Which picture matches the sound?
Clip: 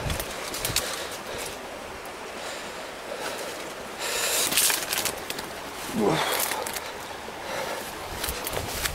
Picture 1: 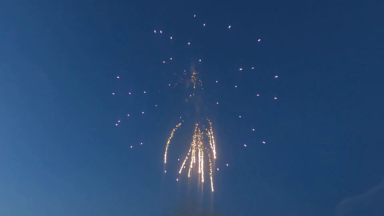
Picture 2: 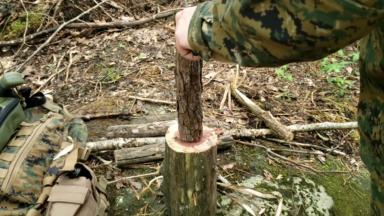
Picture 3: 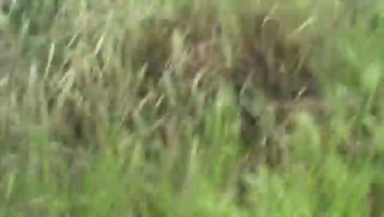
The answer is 3